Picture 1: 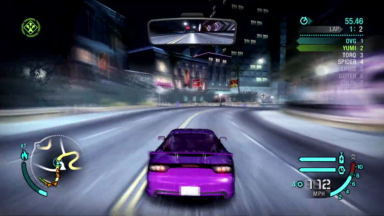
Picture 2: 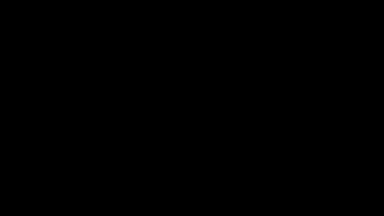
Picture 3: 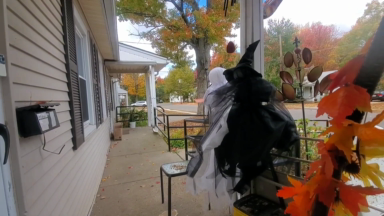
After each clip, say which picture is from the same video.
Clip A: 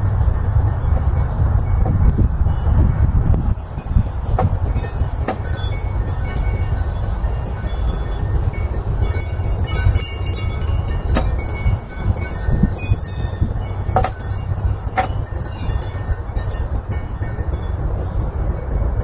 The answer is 3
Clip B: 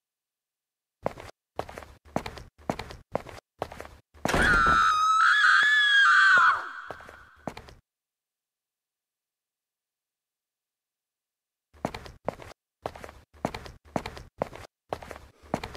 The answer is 2